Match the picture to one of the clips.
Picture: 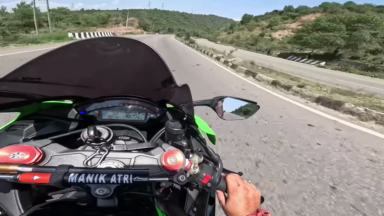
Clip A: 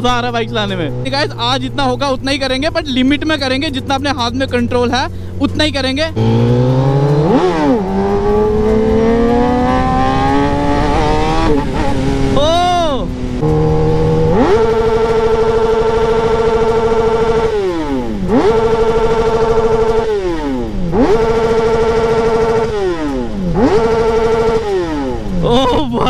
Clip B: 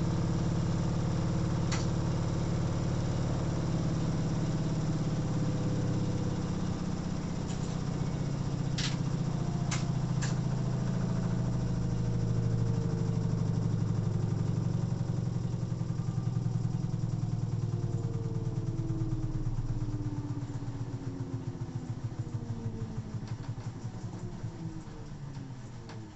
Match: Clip A